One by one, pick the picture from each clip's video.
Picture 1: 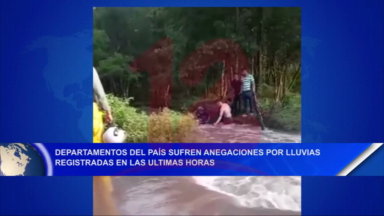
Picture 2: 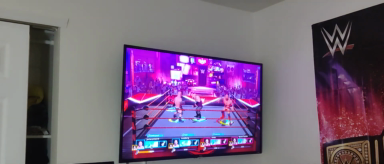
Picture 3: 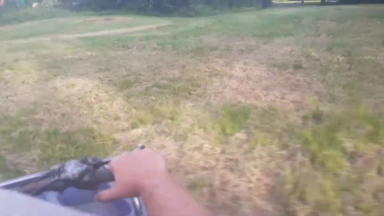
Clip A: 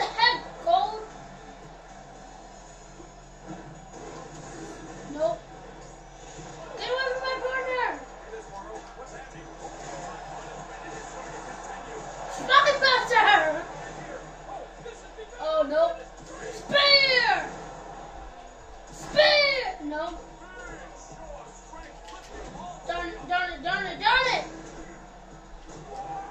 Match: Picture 2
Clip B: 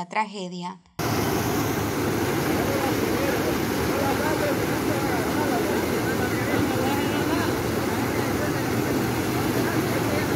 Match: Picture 1